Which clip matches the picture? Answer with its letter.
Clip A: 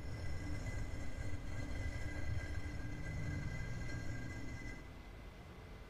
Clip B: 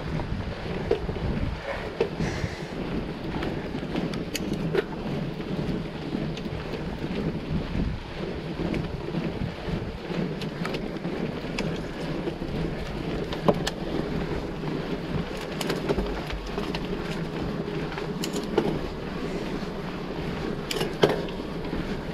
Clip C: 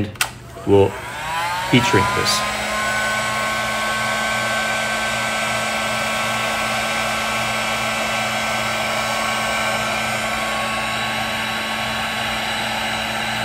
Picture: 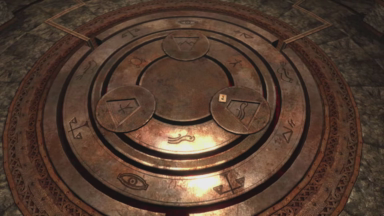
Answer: A